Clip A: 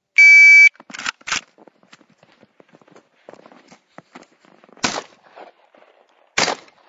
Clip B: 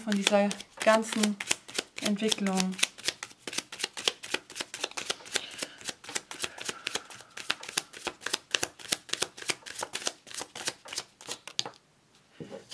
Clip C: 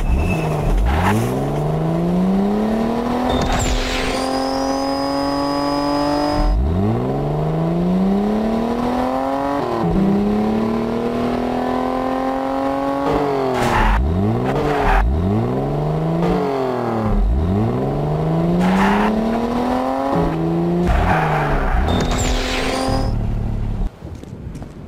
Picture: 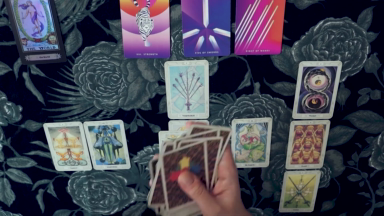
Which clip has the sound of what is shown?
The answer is B